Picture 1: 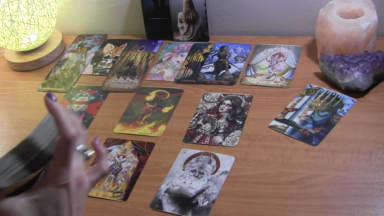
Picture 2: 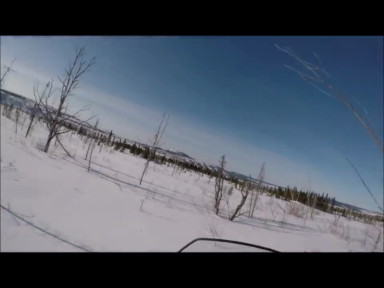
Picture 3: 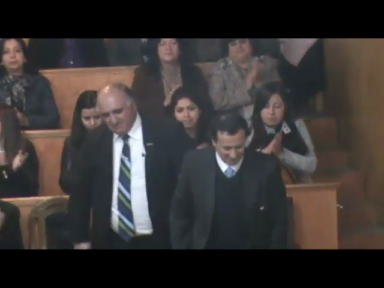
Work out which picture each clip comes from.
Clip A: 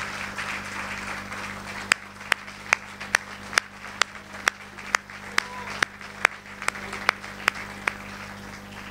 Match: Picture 3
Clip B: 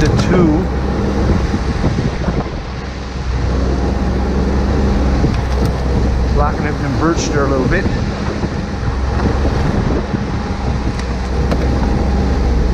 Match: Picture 2